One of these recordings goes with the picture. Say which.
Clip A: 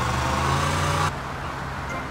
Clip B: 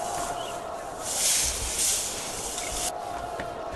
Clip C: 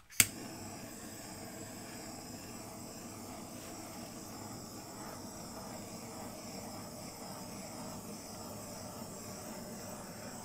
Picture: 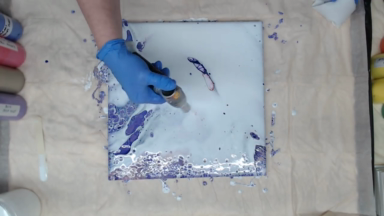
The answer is C